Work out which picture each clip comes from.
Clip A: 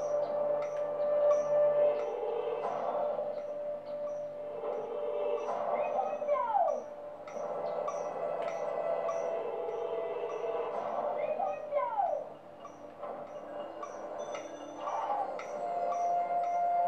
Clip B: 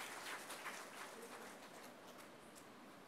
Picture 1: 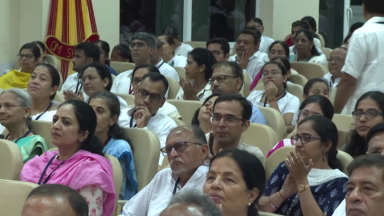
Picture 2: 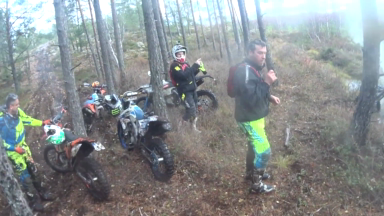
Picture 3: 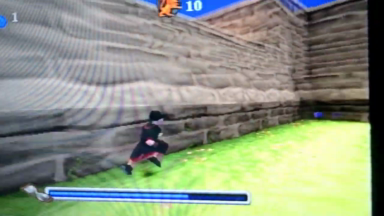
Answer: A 3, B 1